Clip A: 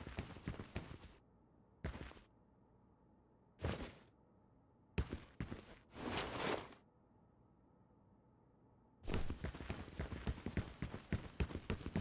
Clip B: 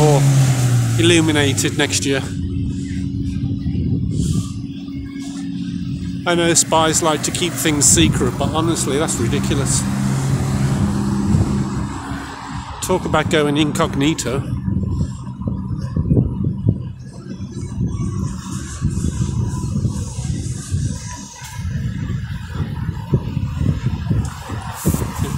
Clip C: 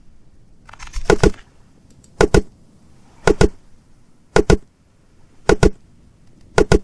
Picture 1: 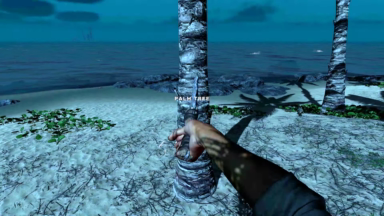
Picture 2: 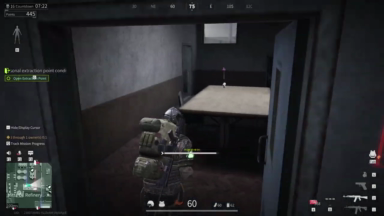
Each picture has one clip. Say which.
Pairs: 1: C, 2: A